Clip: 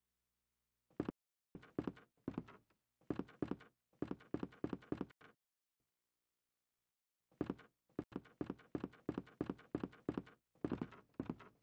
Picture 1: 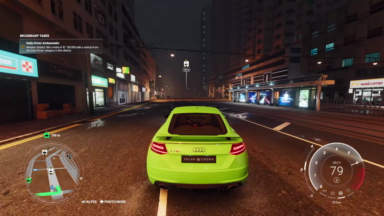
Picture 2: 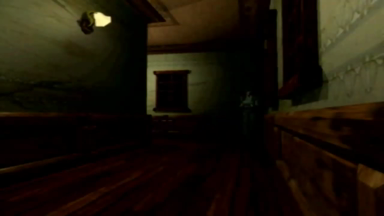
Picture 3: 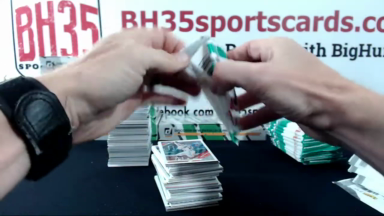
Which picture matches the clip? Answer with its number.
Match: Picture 2